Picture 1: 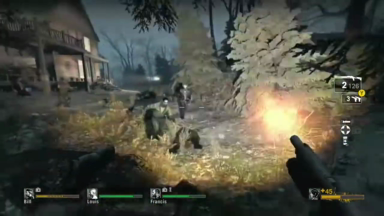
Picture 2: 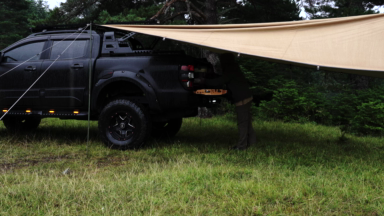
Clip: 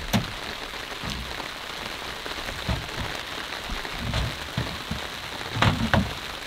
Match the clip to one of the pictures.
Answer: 2